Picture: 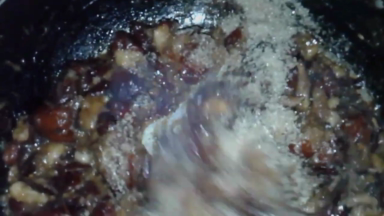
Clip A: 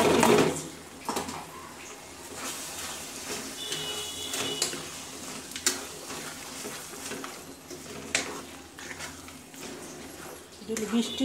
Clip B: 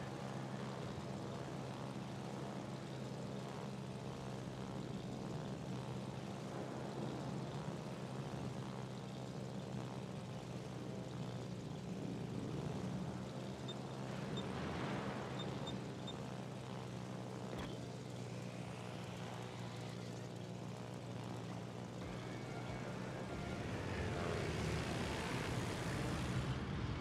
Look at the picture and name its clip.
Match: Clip A